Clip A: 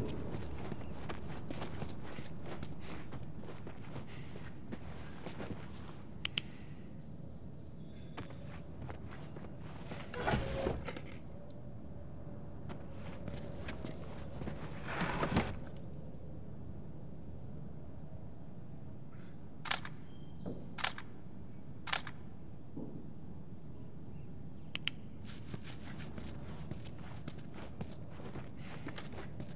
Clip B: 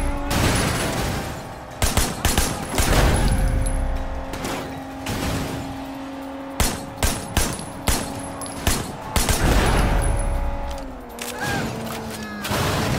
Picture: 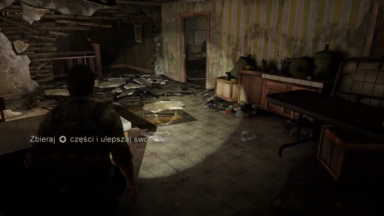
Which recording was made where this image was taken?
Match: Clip A